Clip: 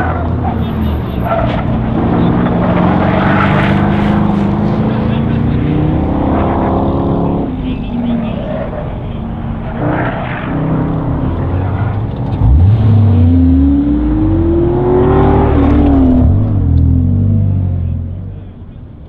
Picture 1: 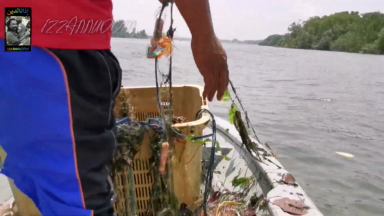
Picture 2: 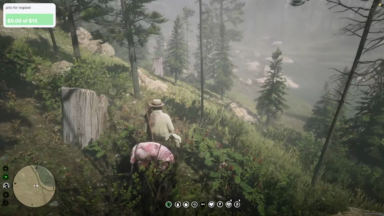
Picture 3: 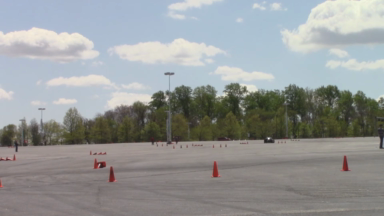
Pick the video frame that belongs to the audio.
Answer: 3